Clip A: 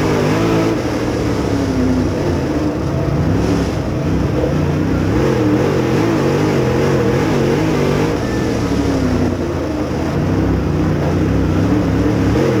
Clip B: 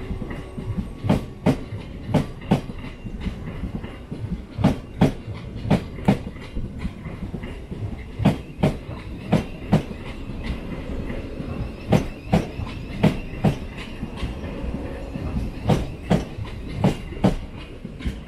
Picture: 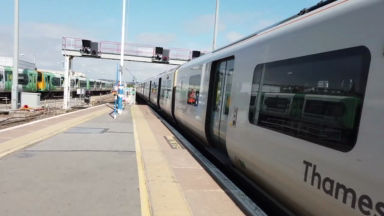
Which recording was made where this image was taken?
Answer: B